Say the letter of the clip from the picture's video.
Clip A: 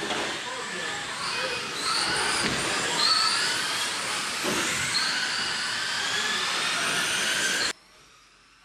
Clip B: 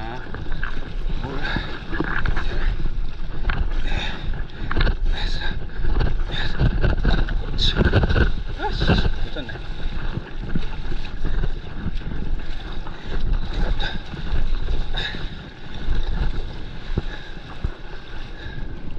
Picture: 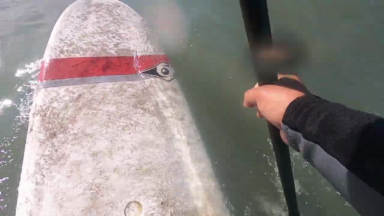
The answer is B